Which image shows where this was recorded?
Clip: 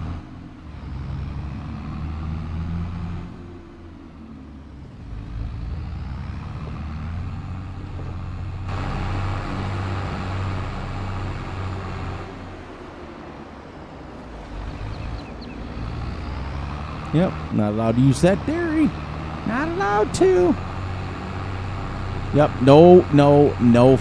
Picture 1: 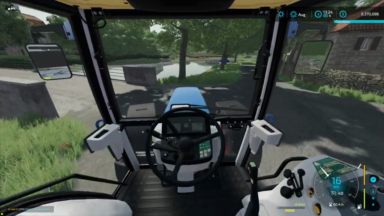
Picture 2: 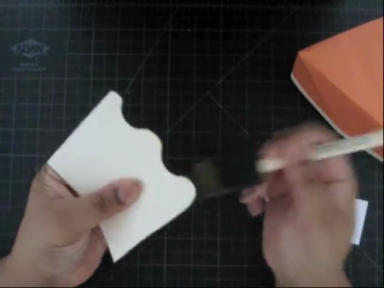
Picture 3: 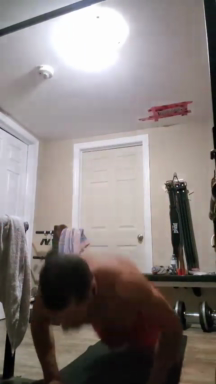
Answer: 1